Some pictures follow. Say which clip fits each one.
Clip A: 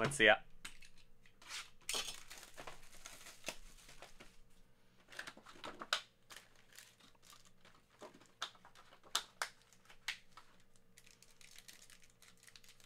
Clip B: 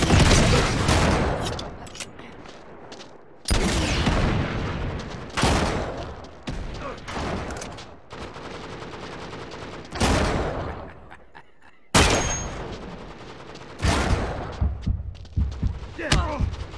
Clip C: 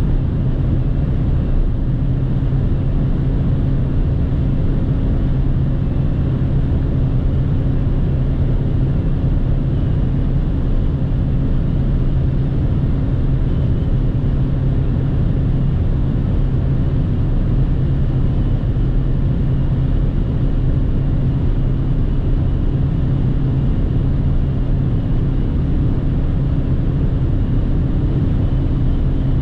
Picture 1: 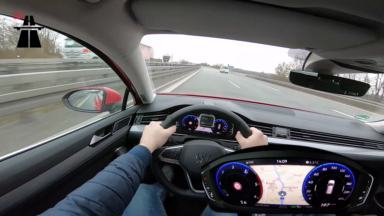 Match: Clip C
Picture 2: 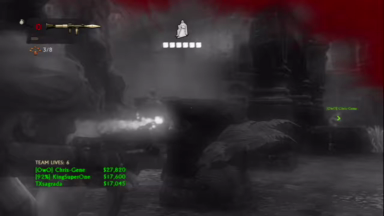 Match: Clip B